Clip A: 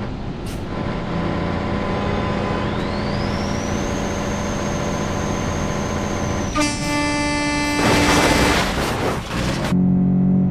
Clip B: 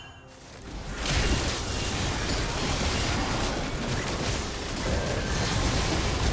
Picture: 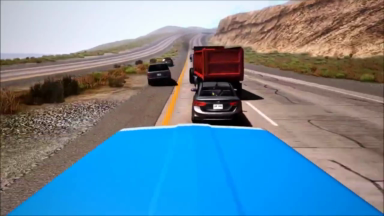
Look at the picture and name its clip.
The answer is A